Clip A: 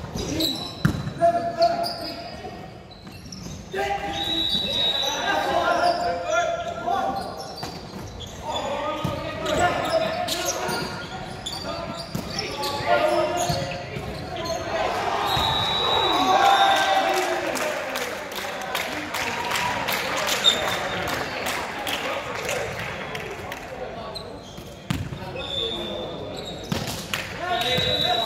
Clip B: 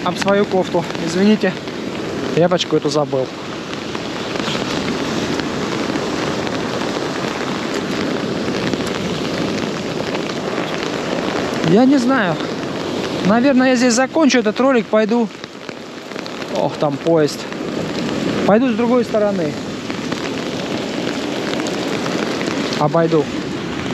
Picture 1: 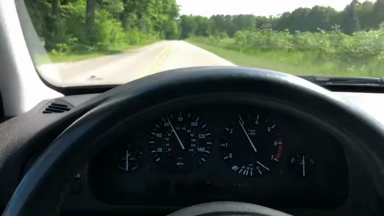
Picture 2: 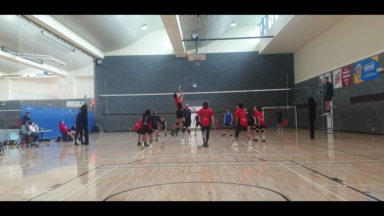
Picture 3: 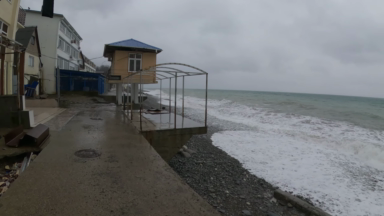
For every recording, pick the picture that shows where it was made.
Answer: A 2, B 3